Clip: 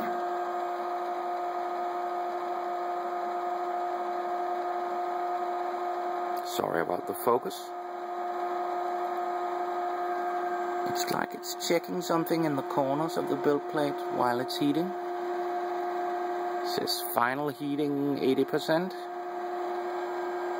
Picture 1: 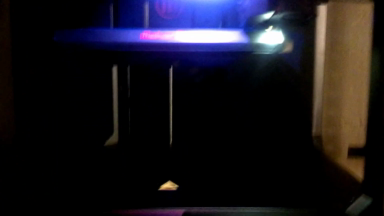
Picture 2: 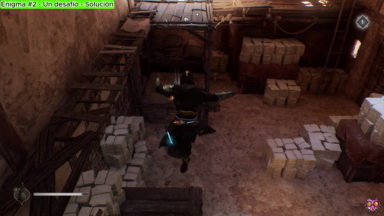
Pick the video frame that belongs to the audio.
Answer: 1